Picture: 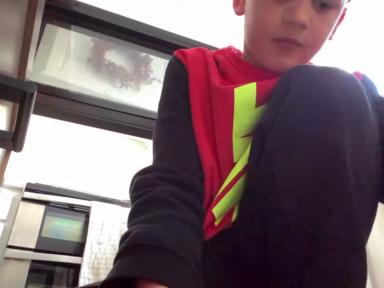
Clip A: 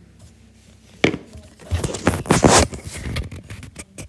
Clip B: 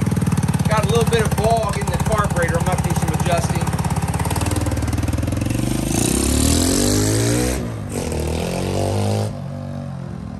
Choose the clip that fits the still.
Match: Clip A